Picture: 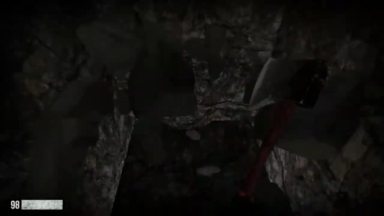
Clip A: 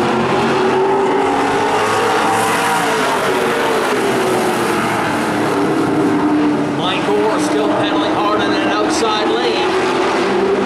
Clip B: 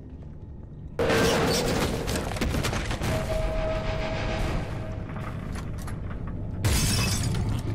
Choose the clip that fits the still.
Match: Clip B